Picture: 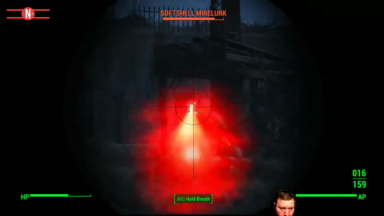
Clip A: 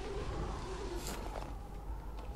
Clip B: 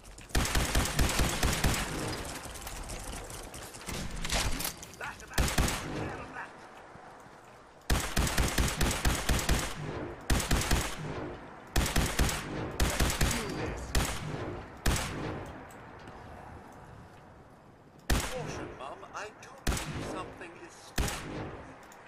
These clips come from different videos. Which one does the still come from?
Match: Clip B